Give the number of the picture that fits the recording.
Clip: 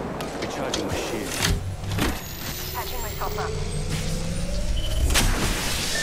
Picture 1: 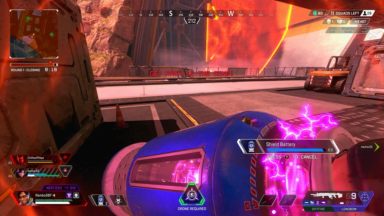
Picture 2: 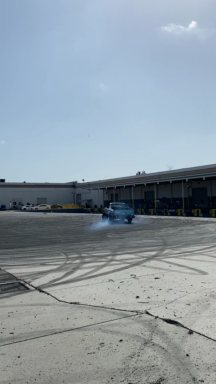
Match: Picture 1